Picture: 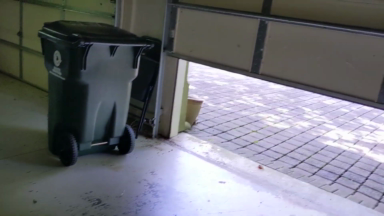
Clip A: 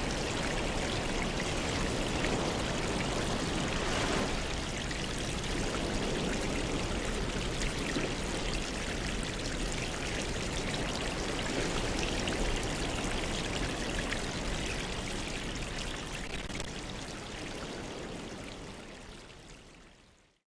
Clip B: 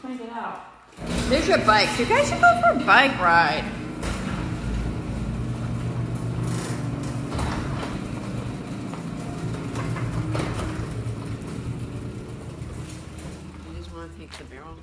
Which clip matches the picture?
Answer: B